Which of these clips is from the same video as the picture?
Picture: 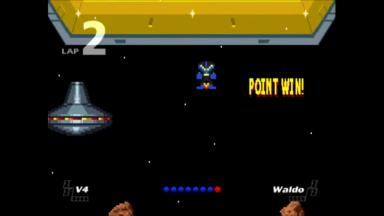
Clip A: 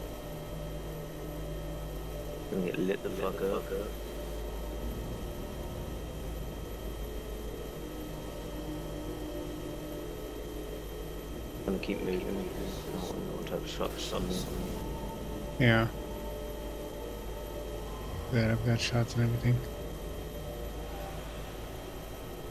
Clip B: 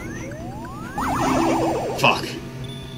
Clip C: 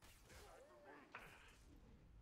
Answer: B